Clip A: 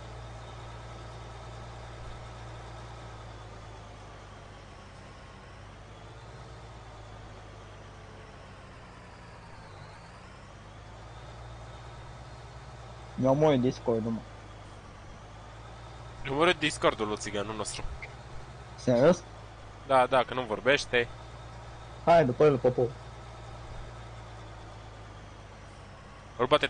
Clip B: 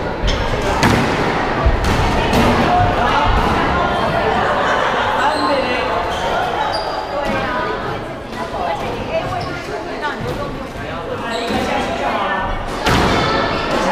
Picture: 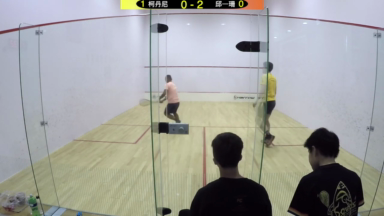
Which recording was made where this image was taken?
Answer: B